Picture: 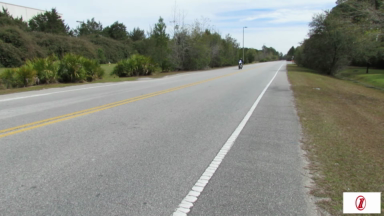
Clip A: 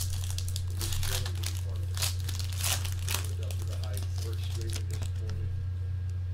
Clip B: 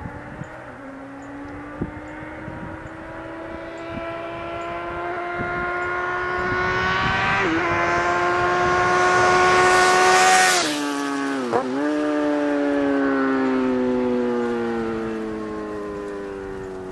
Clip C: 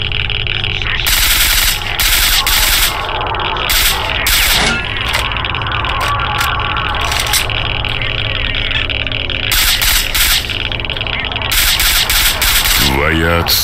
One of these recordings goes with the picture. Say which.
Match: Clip B